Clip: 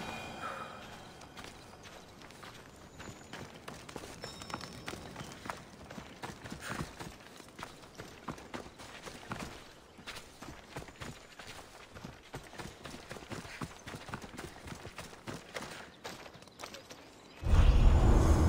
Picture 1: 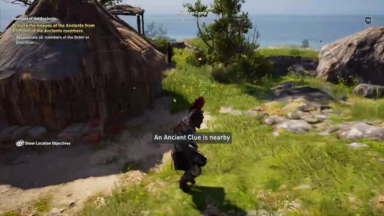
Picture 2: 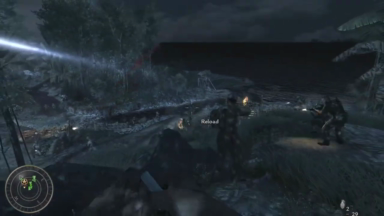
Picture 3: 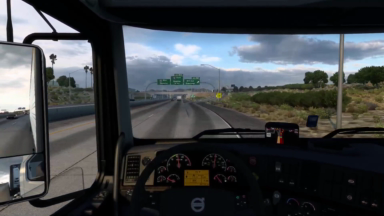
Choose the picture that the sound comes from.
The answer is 1